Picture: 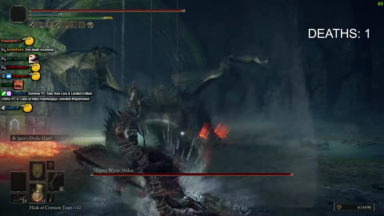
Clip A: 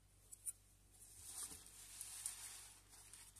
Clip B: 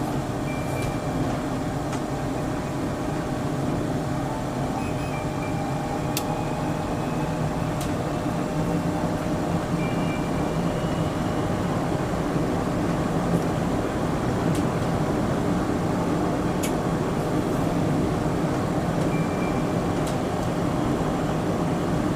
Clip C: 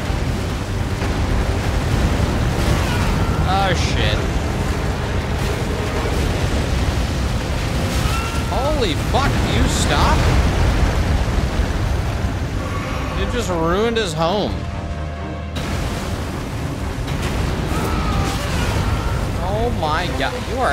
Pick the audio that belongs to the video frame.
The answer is C